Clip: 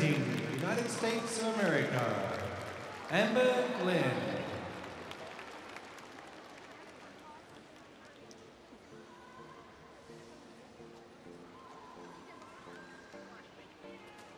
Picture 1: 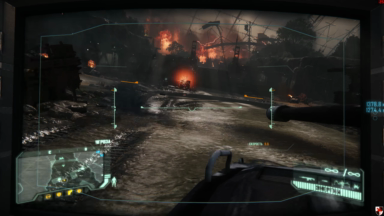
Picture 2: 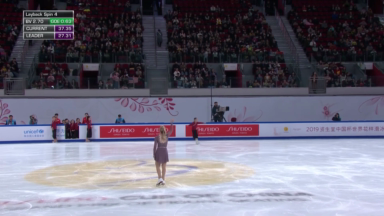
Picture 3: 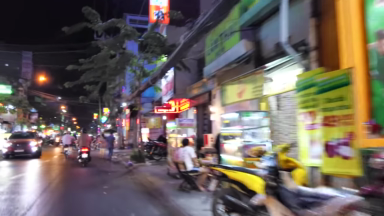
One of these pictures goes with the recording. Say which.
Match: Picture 2